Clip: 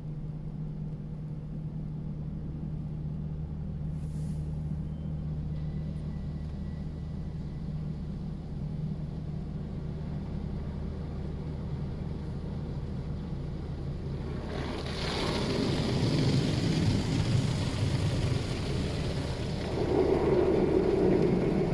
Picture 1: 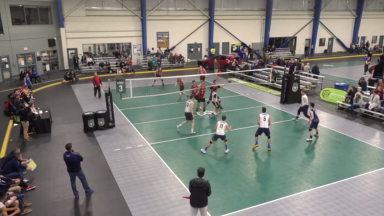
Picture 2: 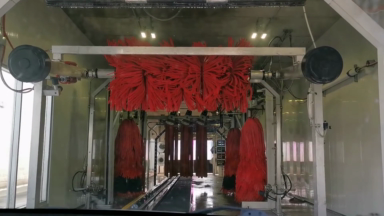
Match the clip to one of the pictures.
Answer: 2